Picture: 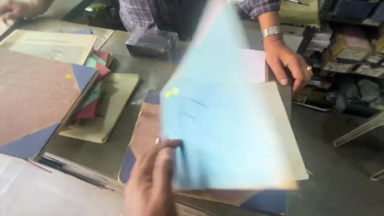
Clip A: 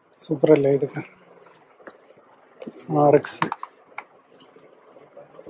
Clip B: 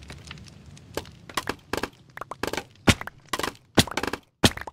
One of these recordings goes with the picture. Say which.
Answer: A